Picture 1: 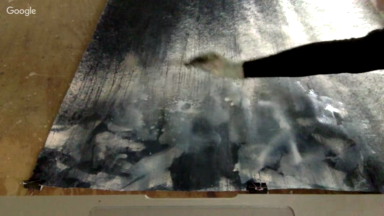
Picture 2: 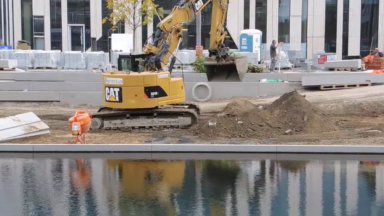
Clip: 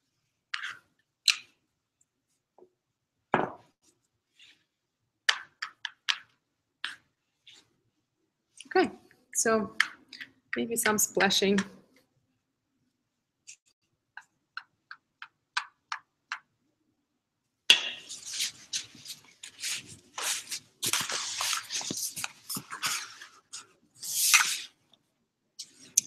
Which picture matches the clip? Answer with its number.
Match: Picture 1